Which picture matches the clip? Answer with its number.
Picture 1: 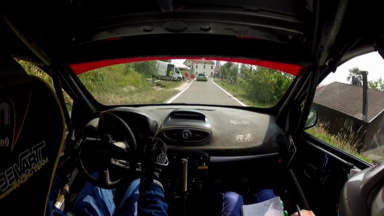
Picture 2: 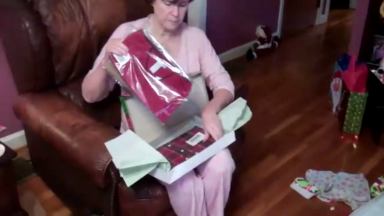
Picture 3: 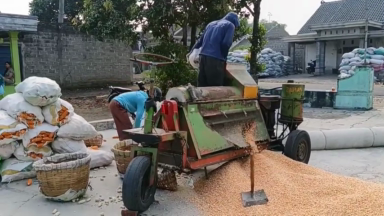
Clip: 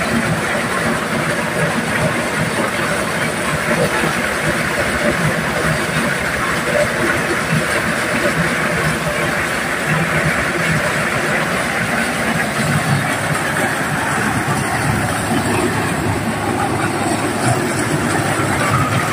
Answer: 3